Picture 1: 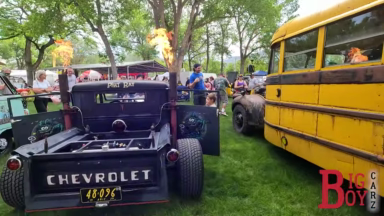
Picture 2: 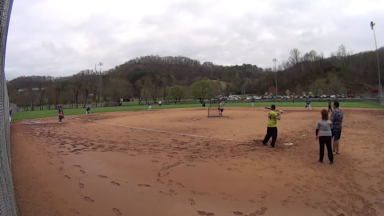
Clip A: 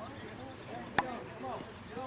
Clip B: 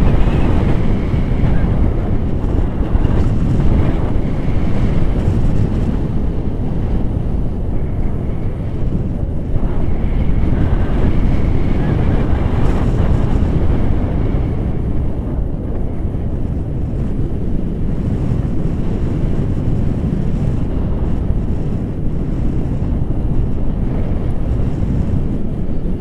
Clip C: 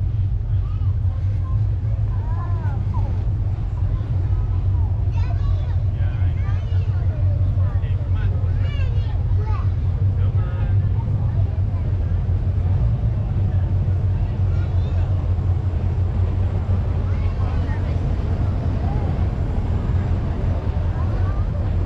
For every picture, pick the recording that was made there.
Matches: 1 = C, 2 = A